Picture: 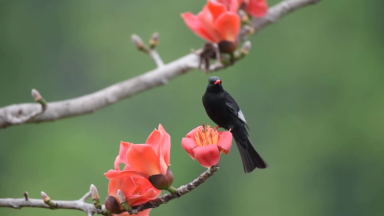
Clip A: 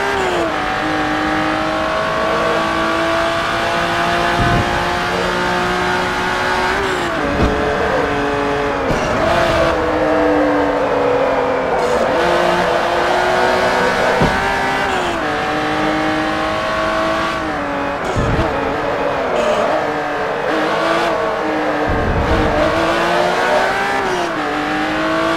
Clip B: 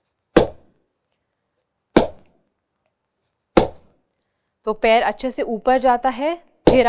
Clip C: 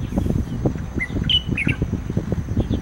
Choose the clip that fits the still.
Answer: C